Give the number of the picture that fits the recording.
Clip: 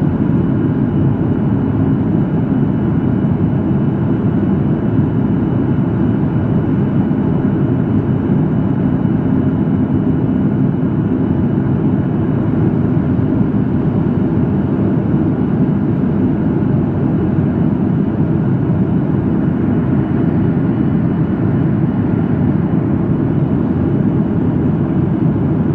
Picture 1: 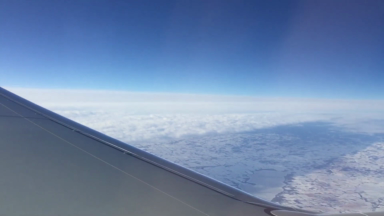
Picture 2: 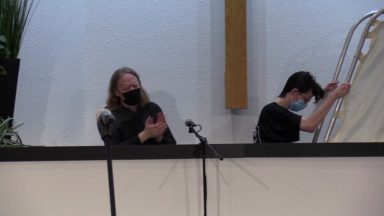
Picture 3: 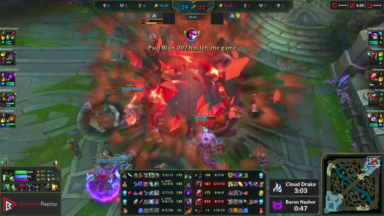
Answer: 1